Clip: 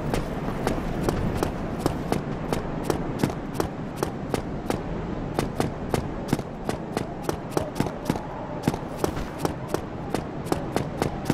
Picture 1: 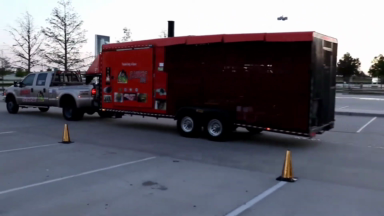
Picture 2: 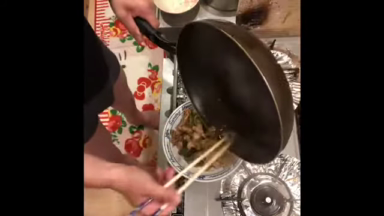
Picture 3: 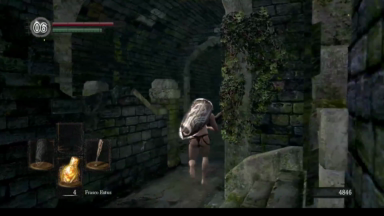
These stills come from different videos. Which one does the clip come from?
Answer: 3